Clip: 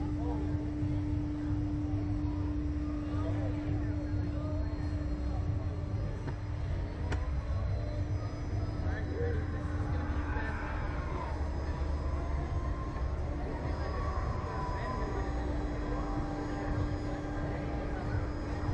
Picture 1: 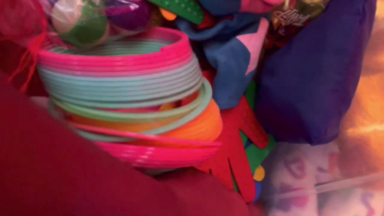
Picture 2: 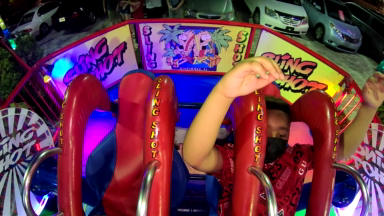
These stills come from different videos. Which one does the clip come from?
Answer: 2